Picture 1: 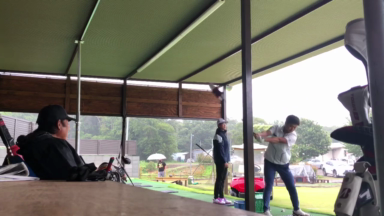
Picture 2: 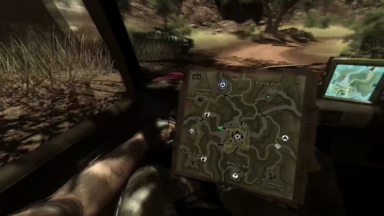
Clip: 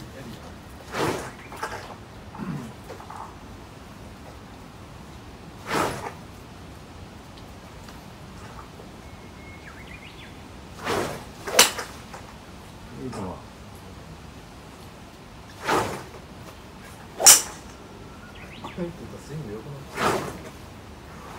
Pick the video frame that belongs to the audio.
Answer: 1